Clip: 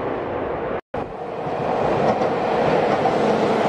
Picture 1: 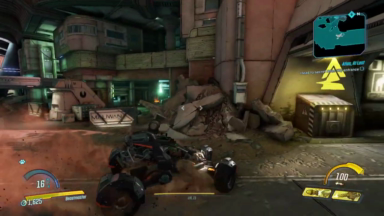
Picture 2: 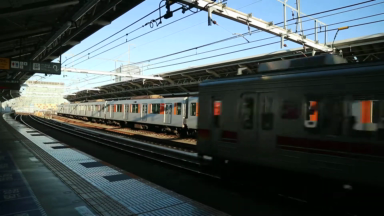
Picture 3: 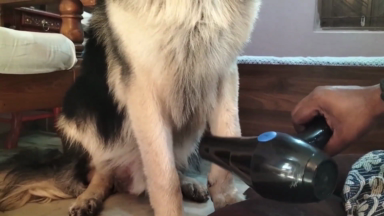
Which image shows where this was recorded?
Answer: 2